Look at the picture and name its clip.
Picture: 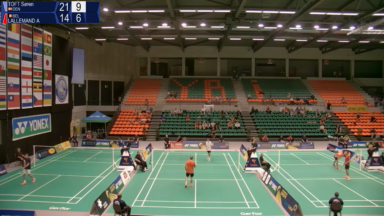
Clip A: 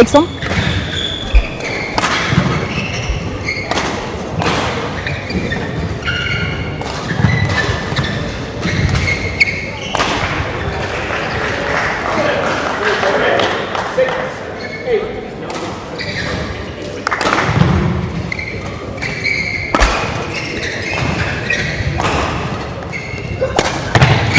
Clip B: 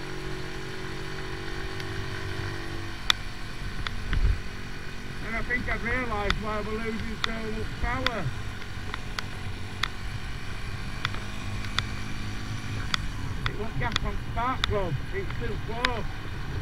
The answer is A